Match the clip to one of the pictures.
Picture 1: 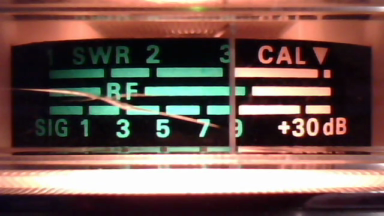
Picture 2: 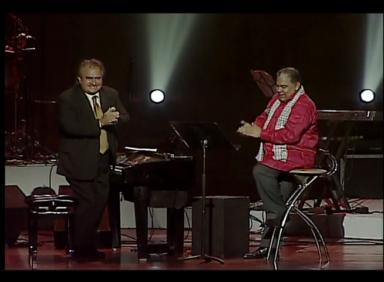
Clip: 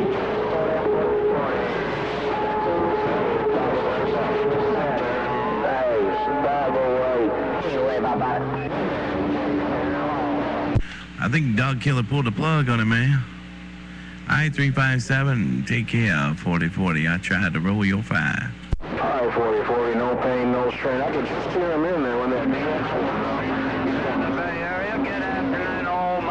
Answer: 1